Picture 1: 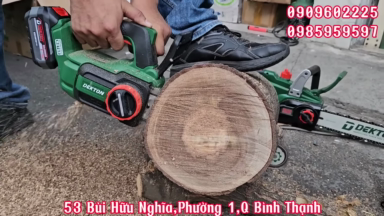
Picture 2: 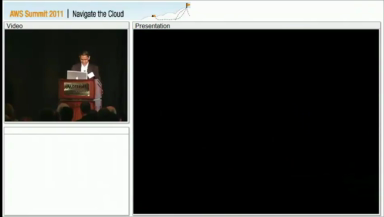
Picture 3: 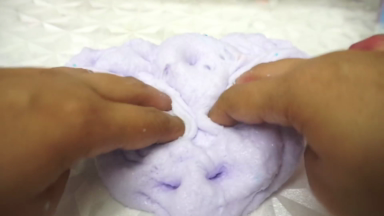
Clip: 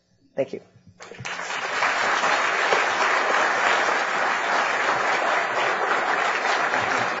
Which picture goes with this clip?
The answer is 2